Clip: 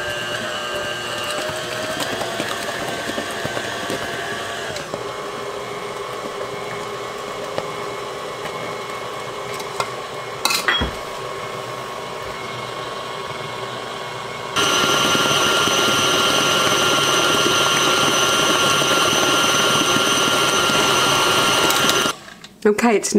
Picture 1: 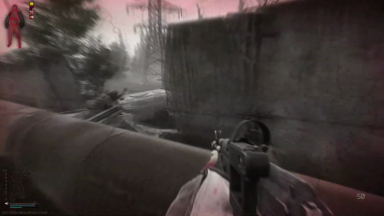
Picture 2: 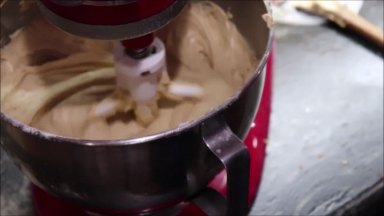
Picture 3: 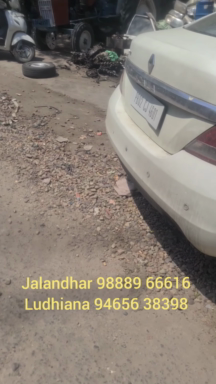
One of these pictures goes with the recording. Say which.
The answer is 2